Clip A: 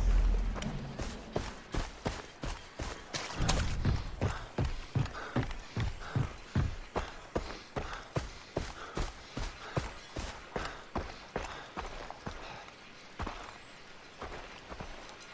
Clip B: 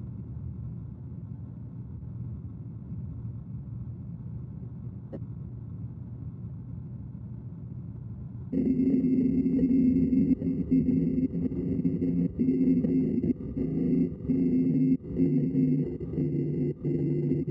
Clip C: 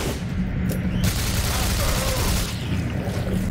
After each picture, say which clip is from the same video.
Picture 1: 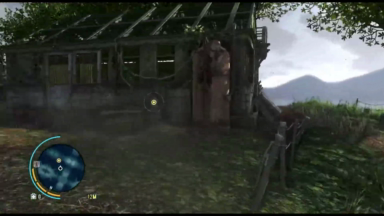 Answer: A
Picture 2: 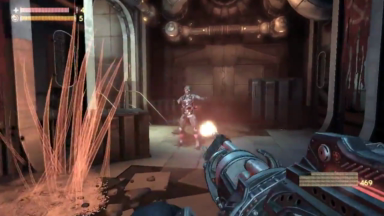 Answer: C